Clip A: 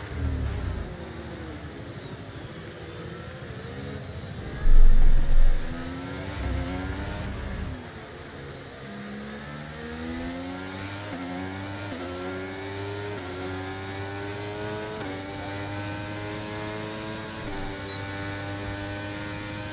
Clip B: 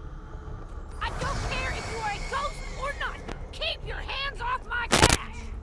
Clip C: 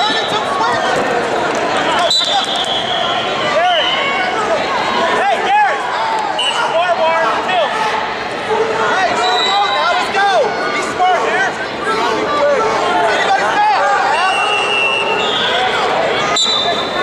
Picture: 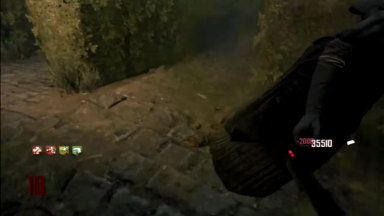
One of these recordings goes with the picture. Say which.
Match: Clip B